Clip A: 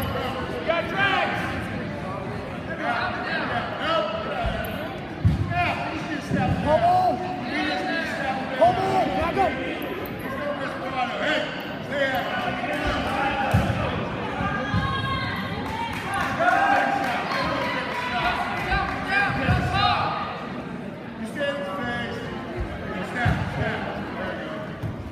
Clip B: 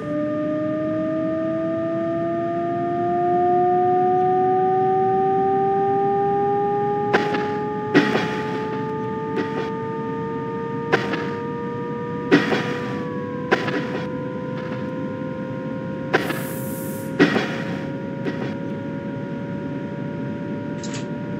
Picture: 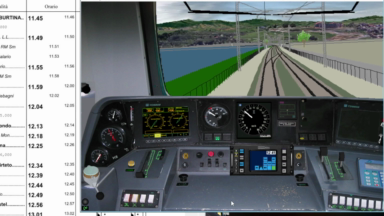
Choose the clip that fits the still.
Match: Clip B